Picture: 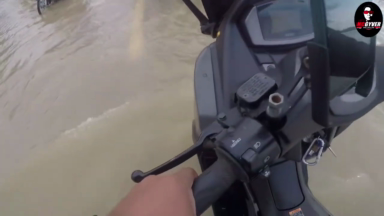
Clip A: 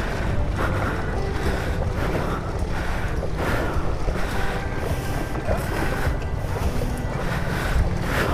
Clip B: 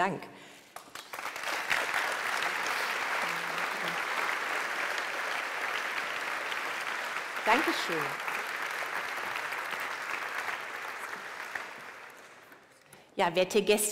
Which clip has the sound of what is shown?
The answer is A